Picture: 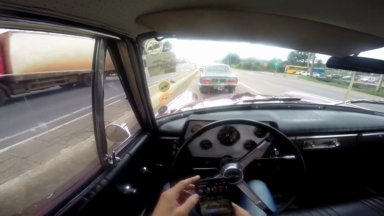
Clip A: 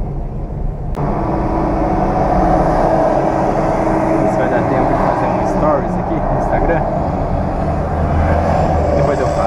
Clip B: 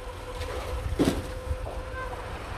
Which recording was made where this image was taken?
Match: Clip A